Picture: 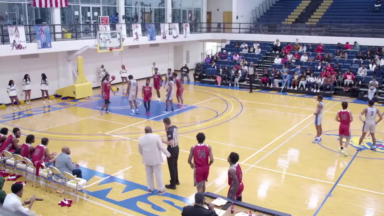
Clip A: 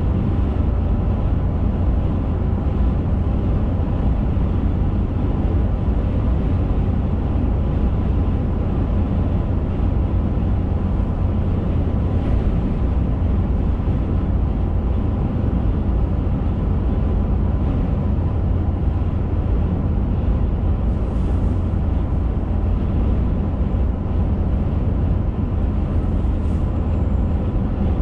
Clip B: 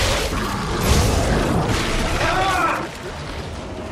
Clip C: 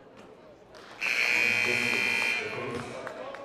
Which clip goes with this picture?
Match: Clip C